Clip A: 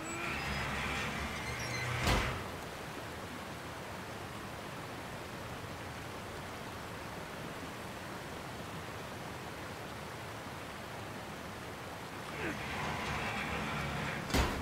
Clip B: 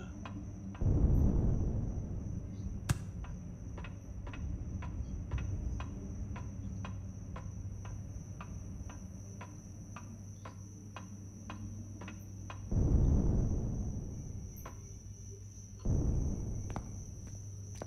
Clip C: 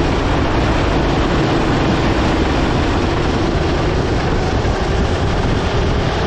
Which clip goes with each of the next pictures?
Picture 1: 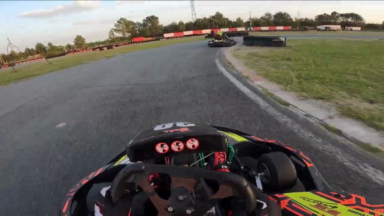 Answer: C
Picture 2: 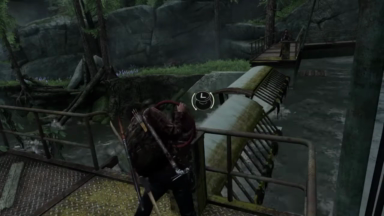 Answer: A